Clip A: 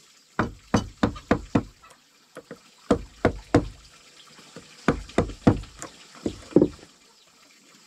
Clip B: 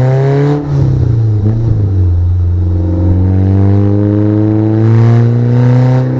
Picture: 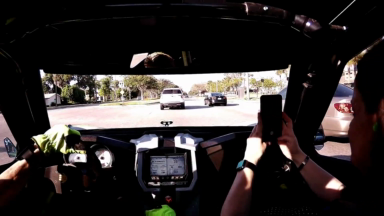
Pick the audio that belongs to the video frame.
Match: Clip B